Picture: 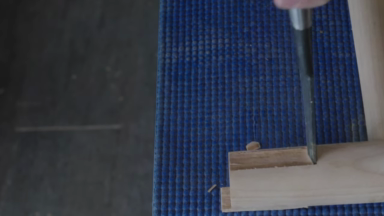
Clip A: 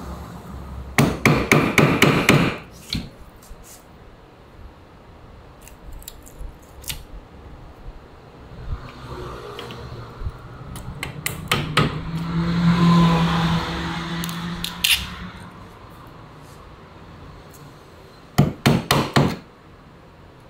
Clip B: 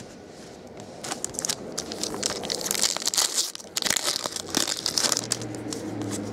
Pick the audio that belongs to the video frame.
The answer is A